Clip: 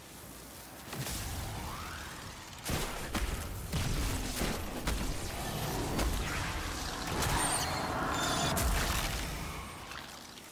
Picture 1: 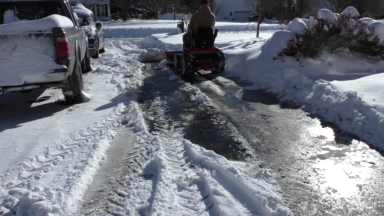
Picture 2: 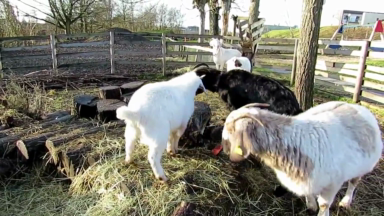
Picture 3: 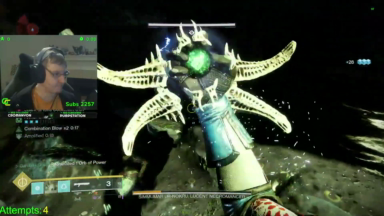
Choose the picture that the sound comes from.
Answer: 3